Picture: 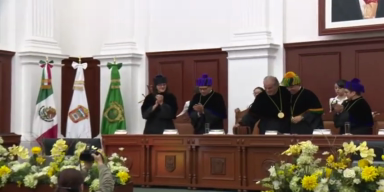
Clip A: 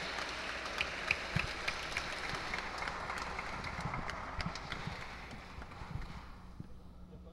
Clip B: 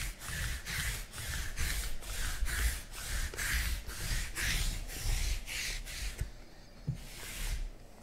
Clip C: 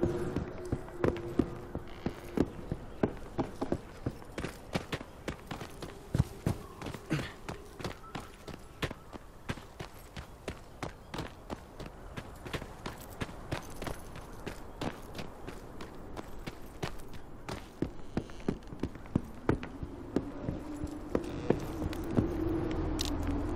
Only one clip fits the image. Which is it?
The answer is A